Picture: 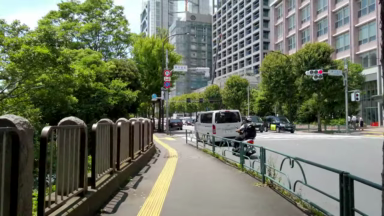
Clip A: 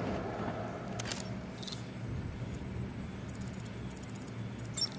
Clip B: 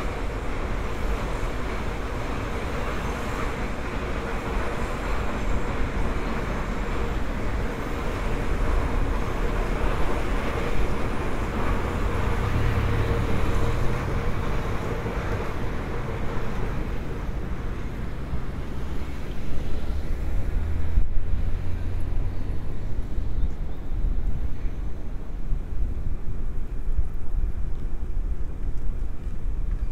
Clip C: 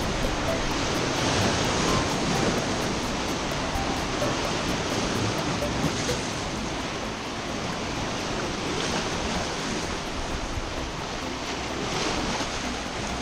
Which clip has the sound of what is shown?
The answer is B